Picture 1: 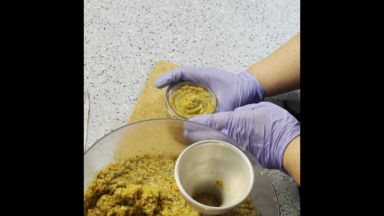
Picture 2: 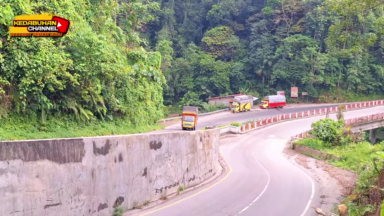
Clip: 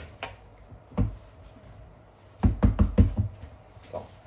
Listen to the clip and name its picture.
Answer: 1